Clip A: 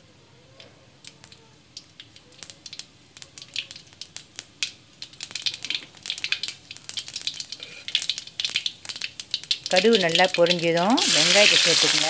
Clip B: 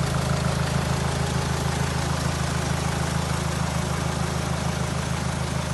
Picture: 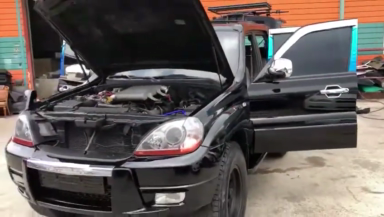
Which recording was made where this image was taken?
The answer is B